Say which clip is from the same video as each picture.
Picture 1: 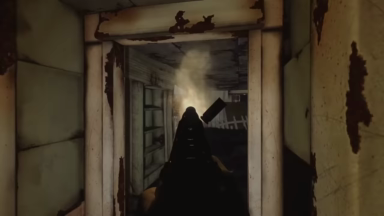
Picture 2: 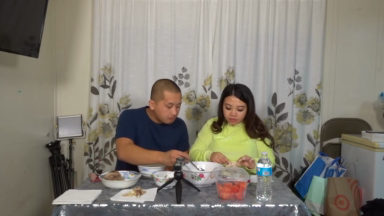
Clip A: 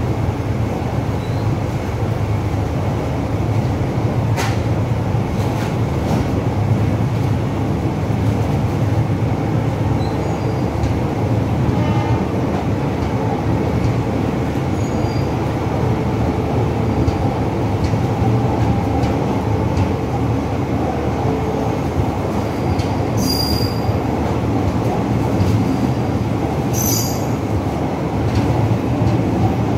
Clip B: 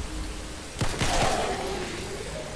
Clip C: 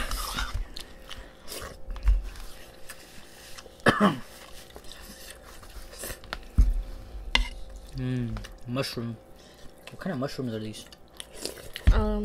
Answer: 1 B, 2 C